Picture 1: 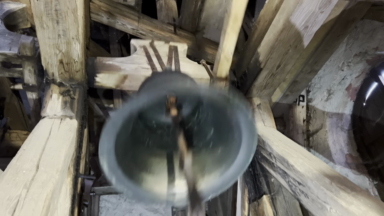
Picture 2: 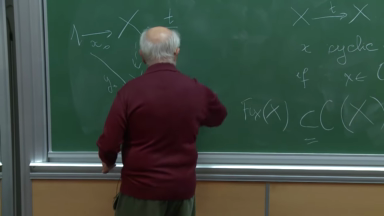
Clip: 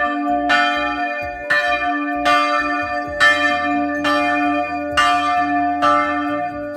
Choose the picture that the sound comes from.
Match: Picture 1